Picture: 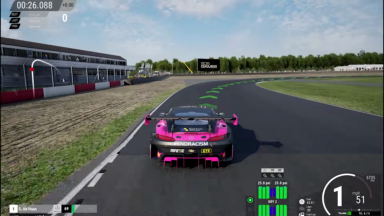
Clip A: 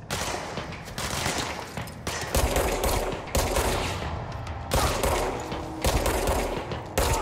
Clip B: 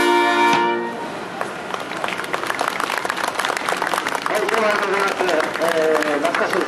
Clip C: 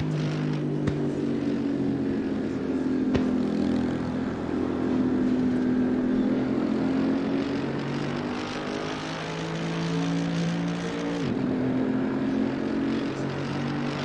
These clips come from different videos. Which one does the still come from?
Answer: C